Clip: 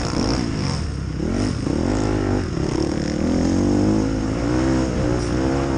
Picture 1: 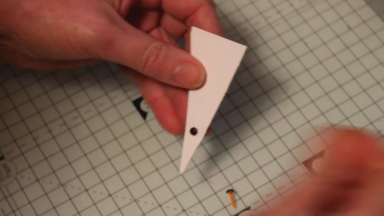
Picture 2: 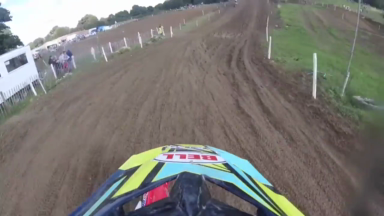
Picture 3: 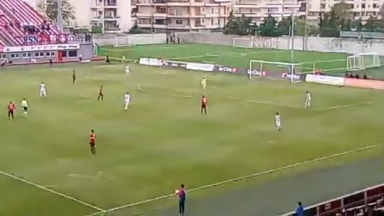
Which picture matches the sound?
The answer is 2